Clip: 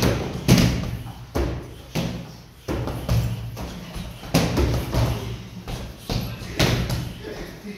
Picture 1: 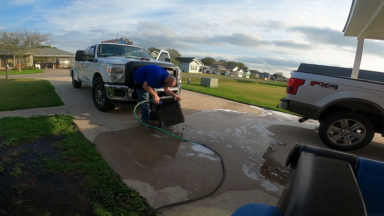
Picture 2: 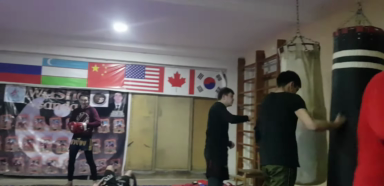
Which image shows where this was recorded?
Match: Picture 2